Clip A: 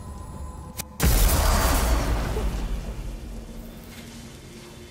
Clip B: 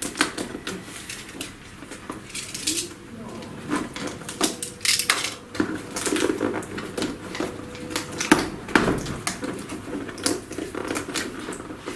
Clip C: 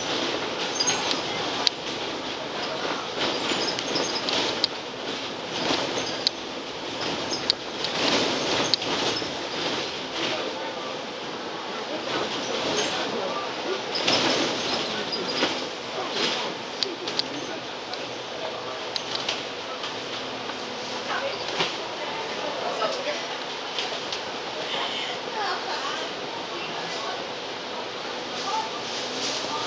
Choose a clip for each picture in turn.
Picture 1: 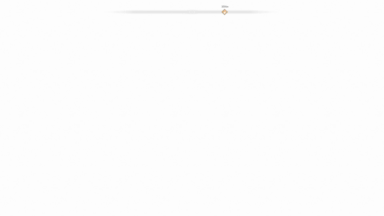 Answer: A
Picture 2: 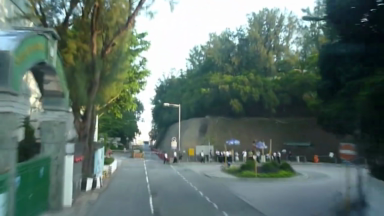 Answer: C